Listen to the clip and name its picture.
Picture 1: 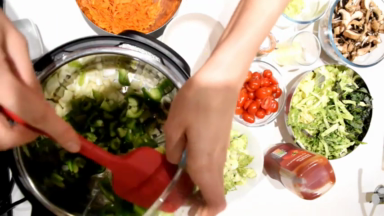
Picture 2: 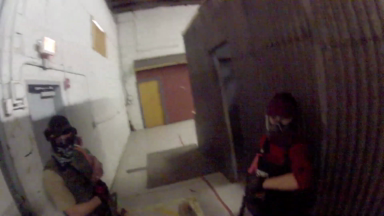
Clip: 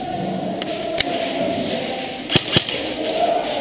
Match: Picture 2